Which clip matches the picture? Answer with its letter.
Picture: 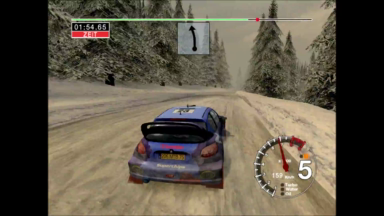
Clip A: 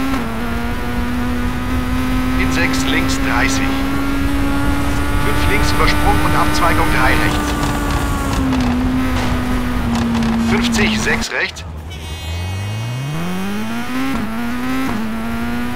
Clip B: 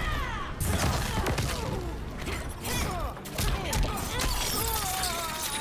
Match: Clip A